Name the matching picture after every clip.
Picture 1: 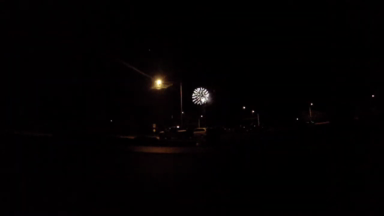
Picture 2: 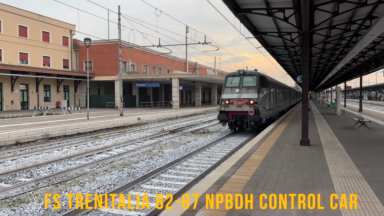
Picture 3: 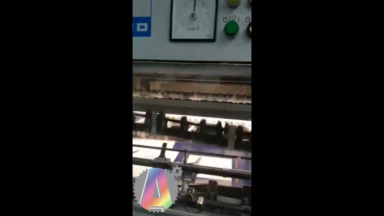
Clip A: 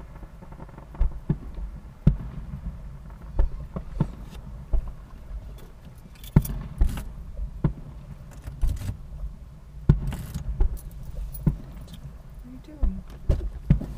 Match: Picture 1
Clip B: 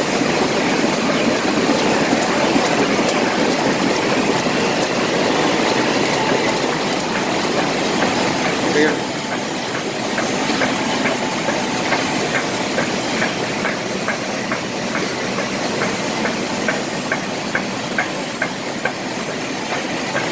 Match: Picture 3